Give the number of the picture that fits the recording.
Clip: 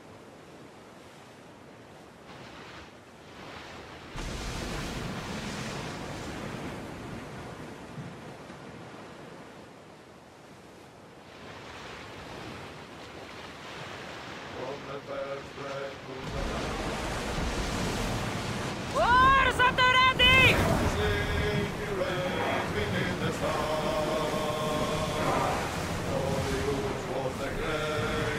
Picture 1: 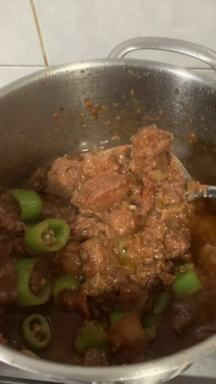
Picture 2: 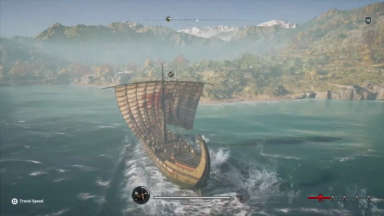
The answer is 2